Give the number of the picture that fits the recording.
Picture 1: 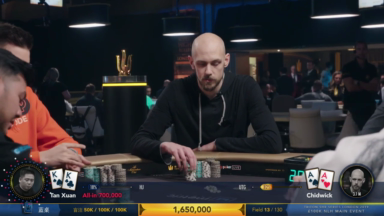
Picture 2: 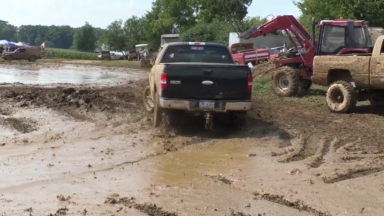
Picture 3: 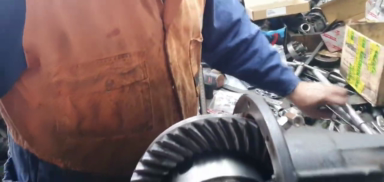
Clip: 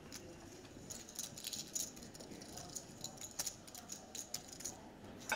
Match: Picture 1